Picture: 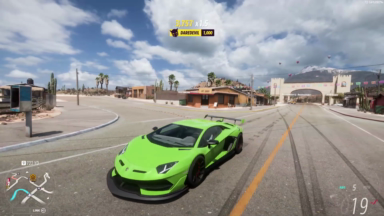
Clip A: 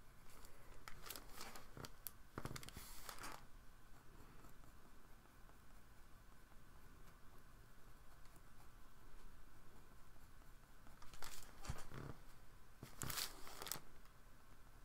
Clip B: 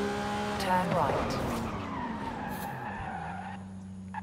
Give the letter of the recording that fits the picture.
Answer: B